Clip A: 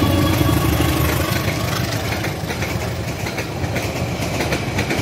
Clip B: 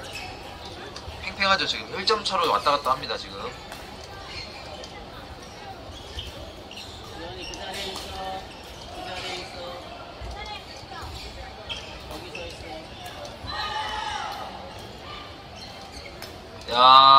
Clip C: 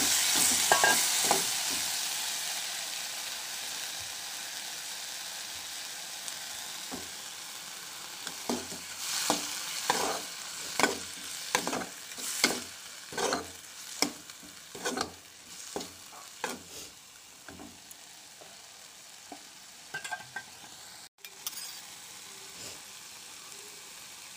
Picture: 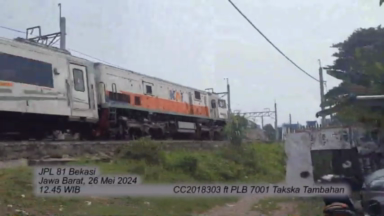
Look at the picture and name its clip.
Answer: A